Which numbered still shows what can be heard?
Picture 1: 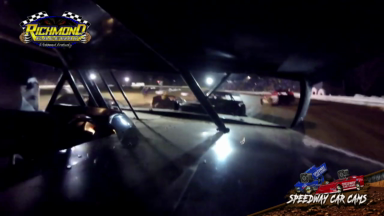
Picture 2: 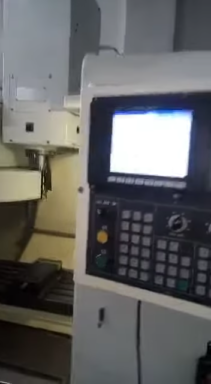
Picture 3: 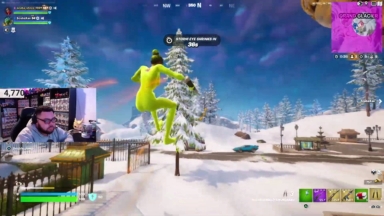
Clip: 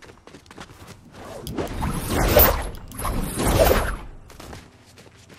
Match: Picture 3